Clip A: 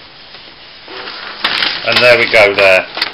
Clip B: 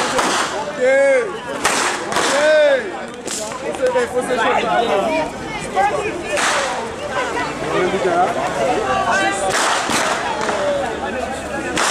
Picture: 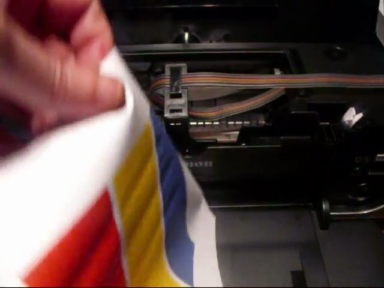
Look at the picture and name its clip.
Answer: A